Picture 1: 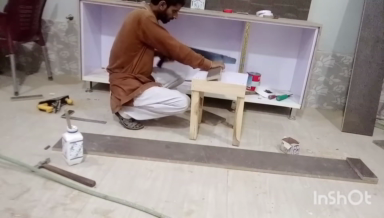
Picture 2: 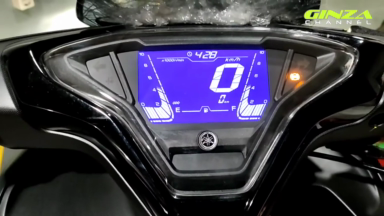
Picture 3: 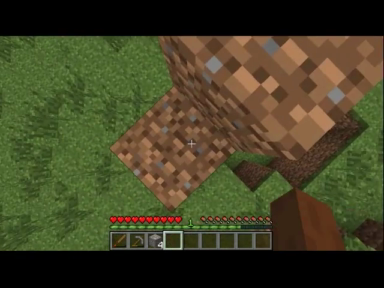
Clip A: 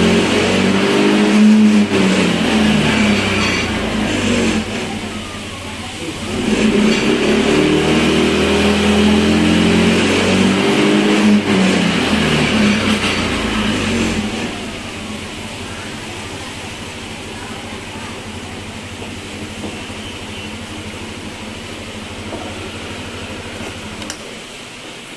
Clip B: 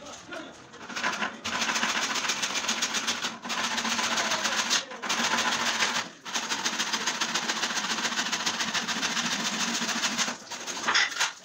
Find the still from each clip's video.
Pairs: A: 2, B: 1